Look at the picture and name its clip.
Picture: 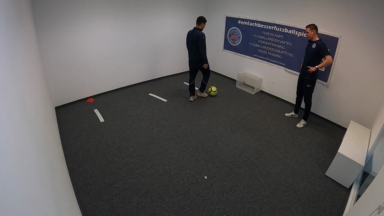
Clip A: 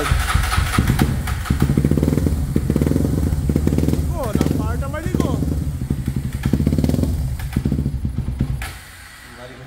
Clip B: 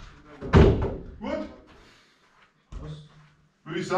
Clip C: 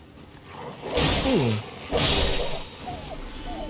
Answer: B